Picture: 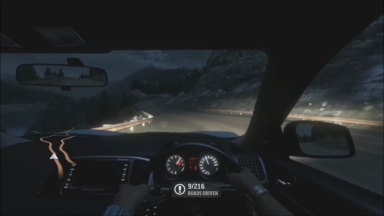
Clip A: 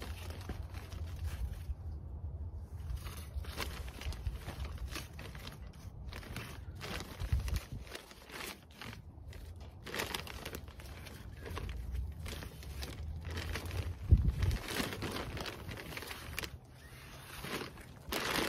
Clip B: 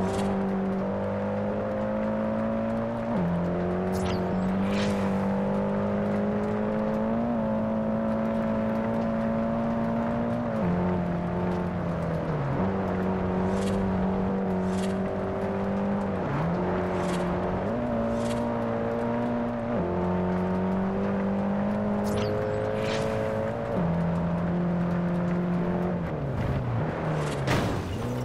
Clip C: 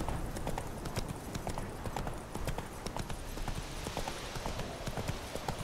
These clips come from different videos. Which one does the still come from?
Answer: B